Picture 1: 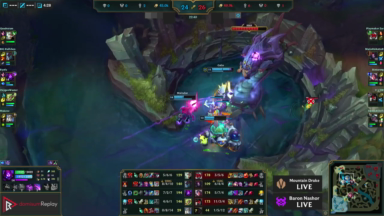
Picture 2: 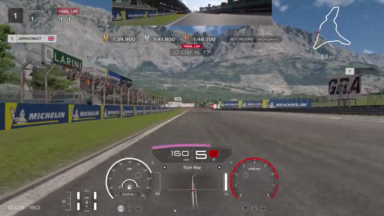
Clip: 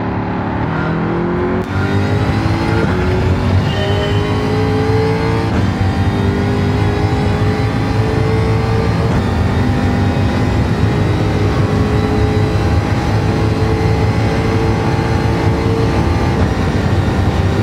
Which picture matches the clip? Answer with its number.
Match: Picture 2